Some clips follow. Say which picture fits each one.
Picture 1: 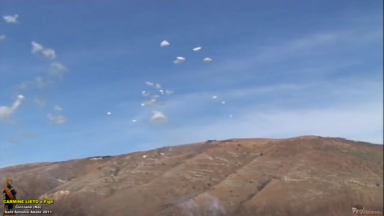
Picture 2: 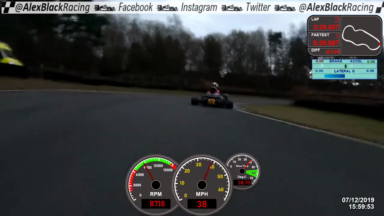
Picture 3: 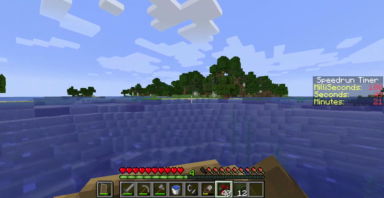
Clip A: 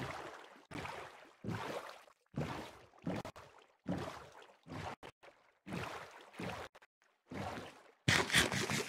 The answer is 3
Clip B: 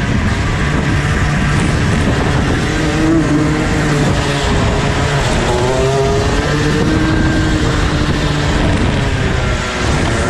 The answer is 2